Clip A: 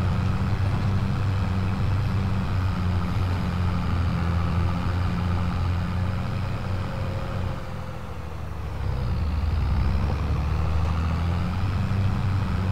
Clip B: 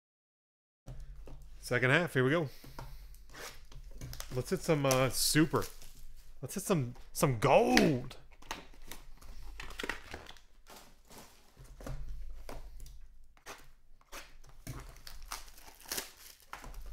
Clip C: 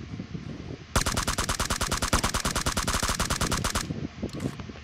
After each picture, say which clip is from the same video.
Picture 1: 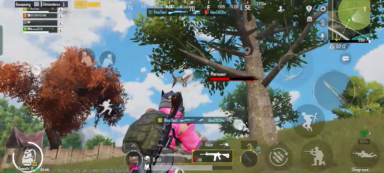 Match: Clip C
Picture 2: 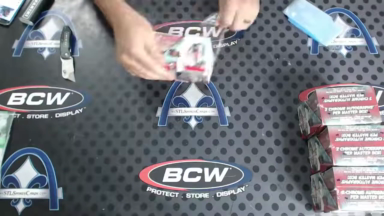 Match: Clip B